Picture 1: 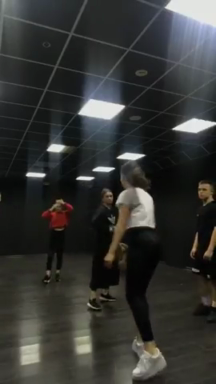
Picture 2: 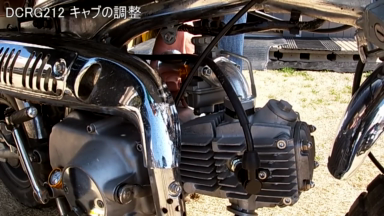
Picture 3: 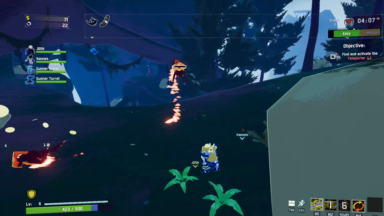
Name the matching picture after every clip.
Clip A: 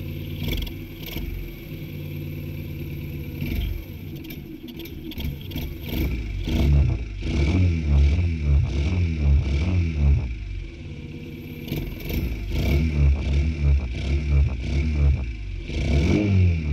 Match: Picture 2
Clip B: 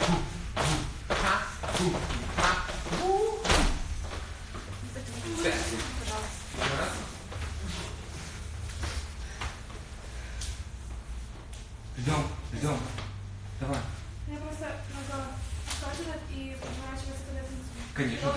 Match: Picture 1